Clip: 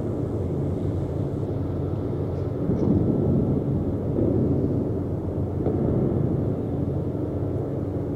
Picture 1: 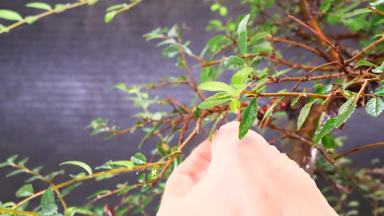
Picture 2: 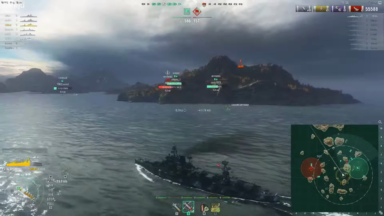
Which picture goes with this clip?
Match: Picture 2